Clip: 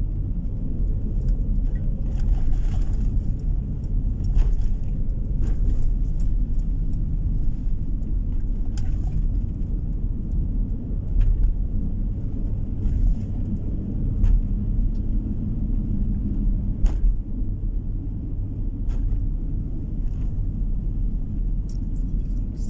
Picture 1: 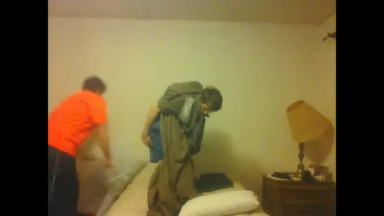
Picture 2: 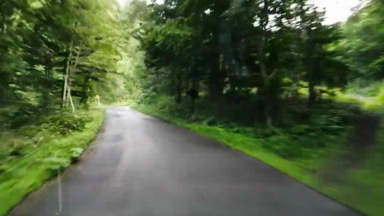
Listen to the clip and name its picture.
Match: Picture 2